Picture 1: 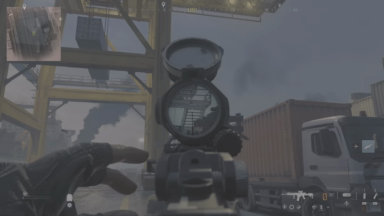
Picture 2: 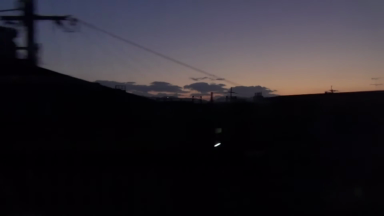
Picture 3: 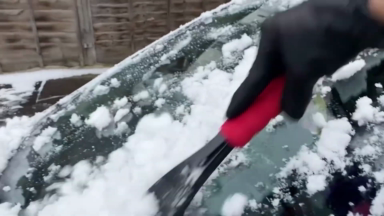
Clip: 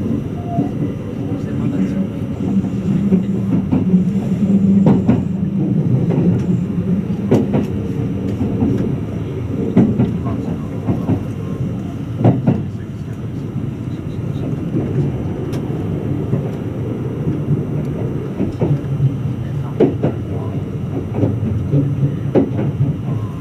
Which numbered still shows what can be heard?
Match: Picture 2